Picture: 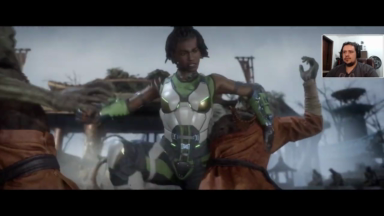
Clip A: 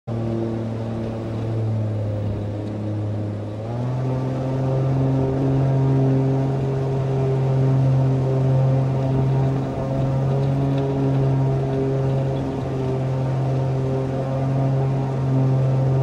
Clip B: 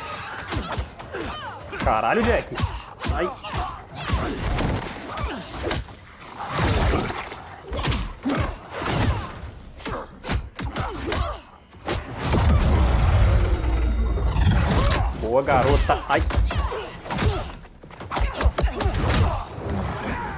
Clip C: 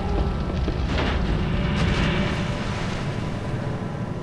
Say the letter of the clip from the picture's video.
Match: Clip B